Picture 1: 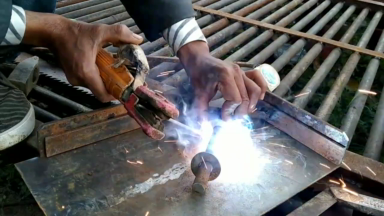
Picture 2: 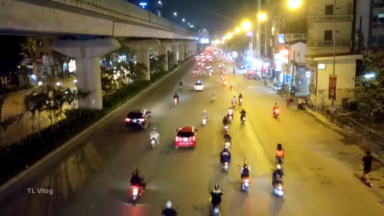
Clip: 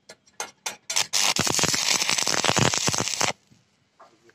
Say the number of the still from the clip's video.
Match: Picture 1